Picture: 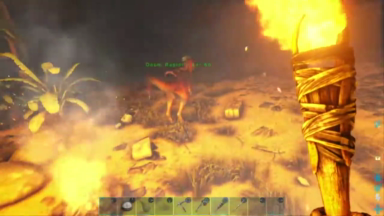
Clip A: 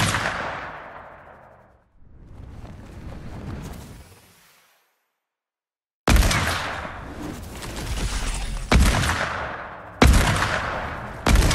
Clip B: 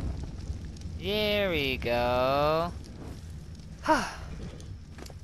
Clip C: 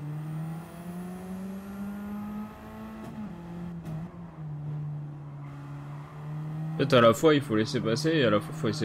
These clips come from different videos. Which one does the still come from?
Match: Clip B